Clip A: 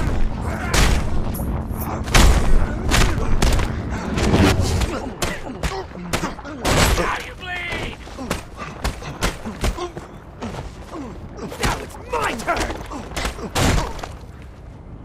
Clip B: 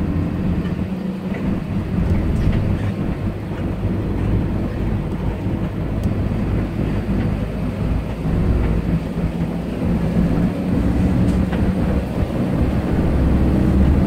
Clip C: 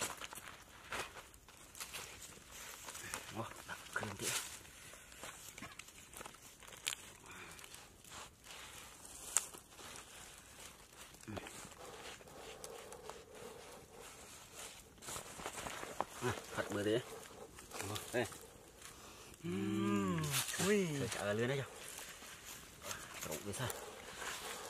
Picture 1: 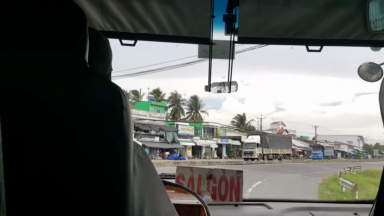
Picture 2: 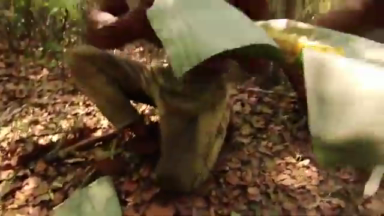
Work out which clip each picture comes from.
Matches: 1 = B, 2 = C